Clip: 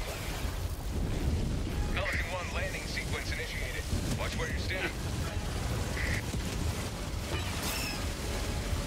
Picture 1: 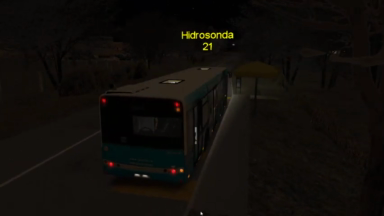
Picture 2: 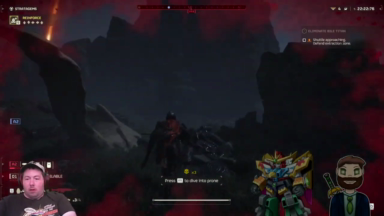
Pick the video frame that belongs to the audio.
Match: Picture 2